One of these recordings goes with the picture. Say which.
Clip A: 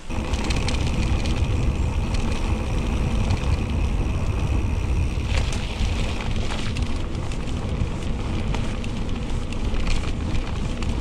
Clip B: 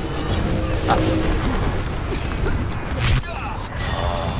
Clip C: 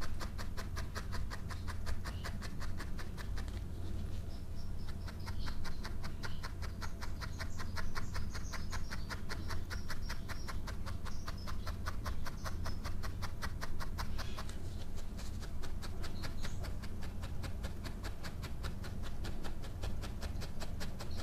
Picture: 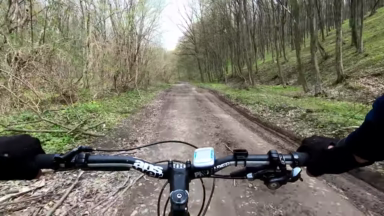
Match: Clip A